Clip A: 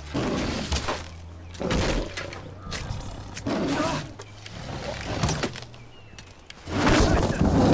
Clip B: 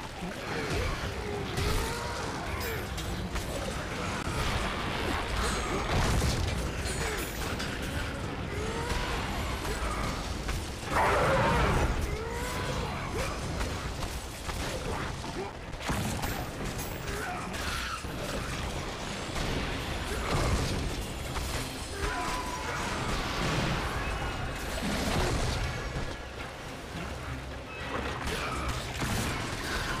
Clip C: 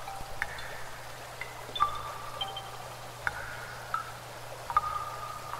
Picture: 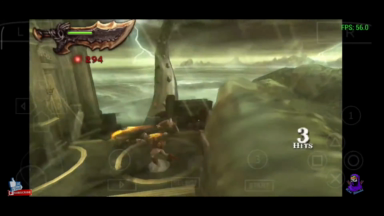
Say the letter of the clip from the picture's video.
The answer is B